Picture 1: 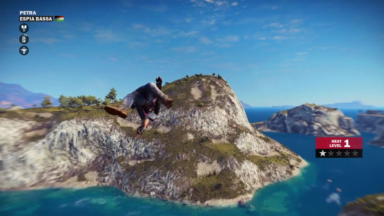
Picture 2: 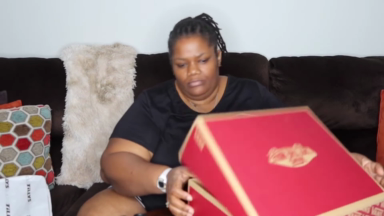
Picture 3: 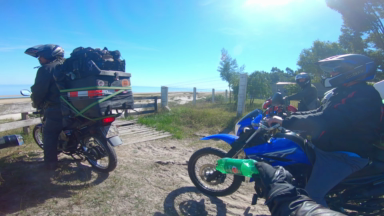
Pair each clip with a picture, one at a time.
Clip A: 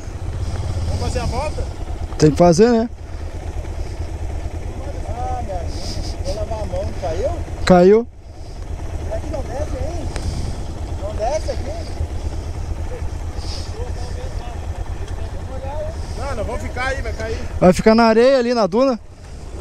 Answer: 3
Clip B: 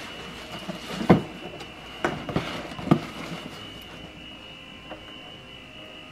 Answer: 2